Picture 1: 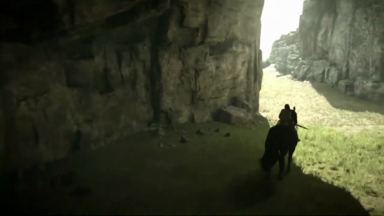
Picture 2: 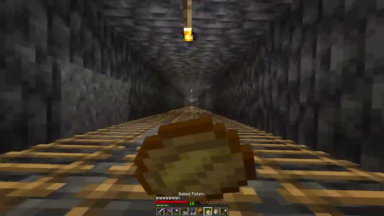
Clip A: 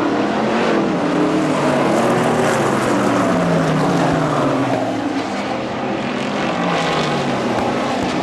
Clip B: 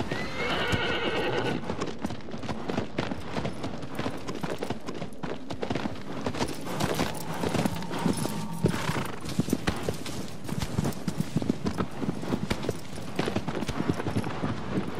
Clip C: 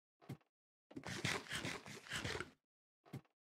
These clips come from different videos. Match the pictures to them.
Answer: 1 B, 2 C